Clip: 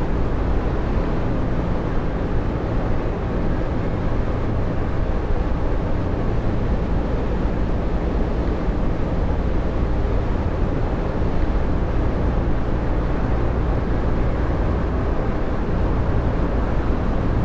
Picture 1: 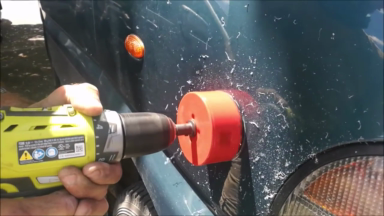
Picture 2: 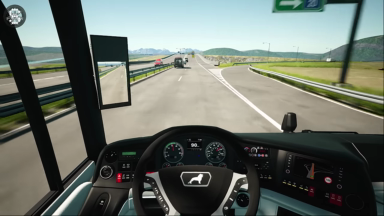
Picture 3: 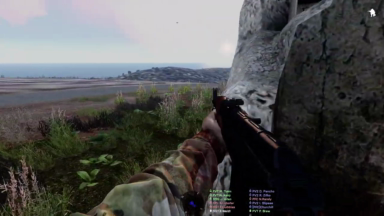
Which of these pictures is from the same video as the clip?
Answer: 2